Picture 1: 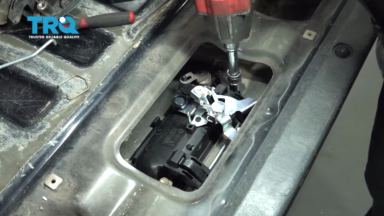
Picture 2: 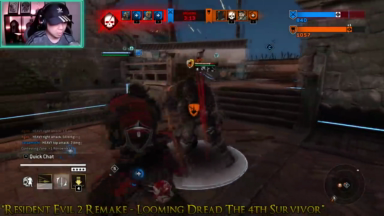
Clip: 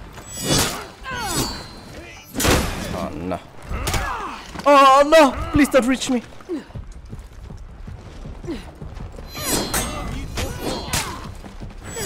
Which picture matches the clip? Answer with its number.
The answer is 2